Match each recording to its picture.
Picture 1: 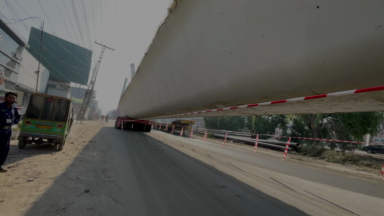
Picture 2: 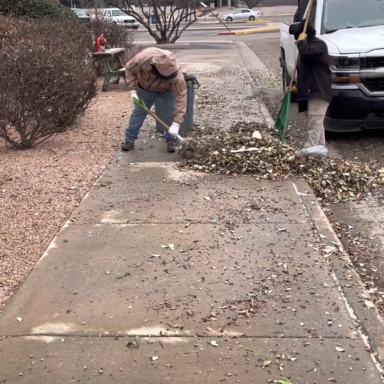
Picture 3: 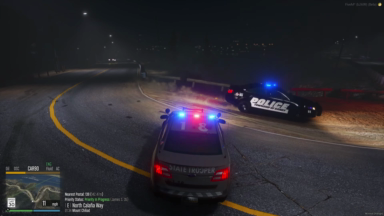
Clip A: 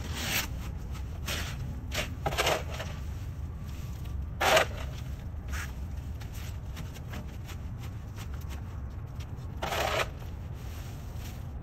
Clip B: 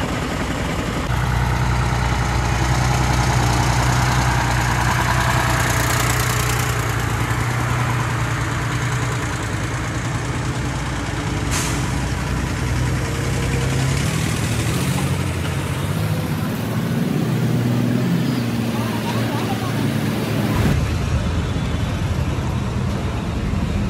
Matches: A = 2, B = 1